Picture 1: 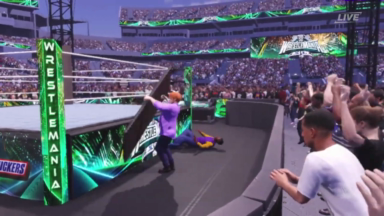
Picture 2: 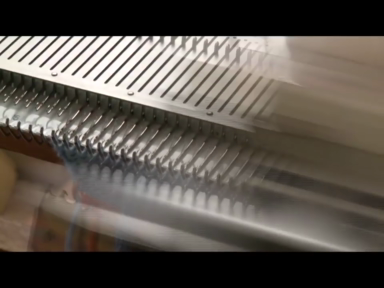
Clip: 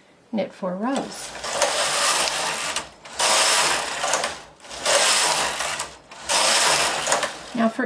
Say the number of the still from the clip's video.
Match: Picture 2